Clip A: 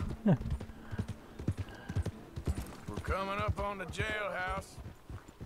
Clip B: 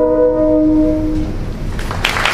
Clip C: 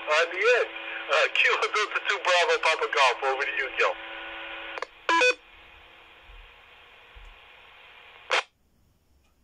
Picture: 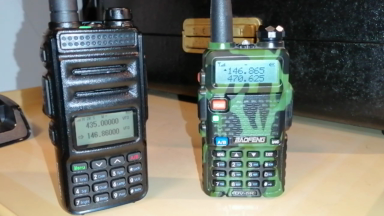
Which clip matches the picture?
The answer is C